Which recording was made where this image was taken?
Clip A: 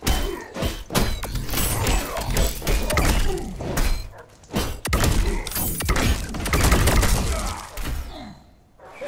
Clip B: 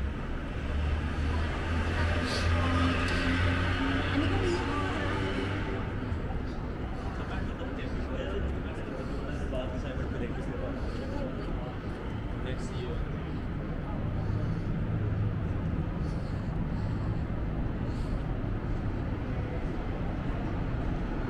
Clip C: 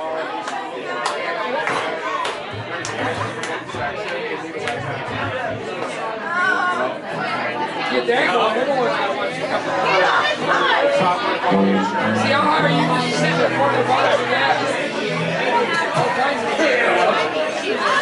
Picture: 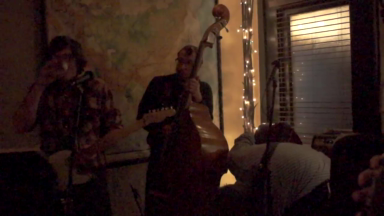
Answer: C